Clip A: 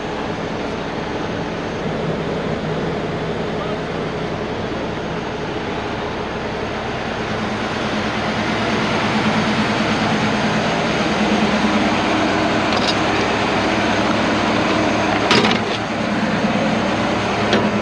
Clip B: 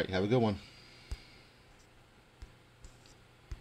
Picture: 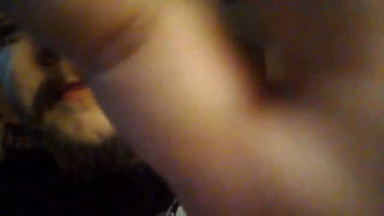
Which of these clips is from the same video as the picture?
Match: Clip B